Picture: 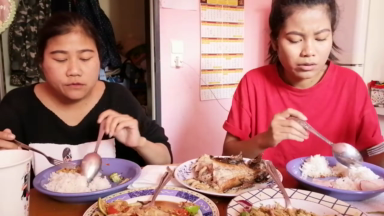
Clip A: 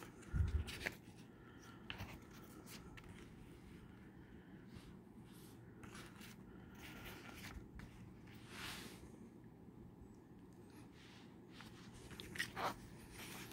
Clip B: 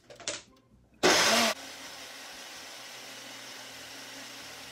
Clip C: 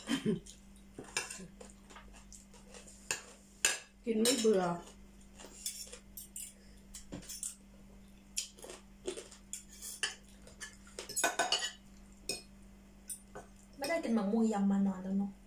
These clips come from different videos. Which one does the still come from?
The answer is C